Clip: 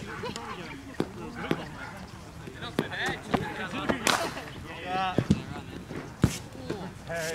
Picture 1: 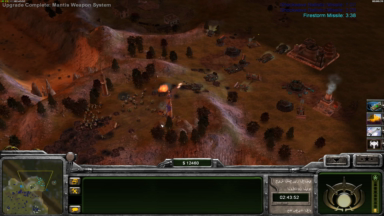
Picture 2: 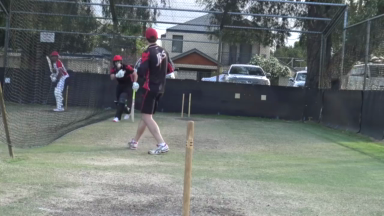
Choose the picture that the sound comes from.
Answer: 2